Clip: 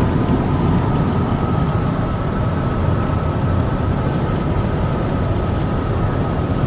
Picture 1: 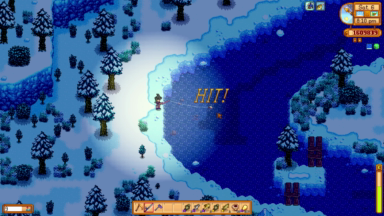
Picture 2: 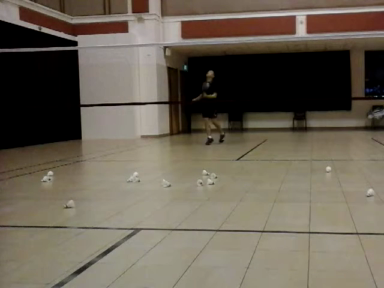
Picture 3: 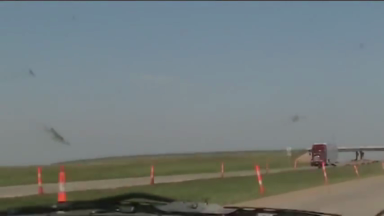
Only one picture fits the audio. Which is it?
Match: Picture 3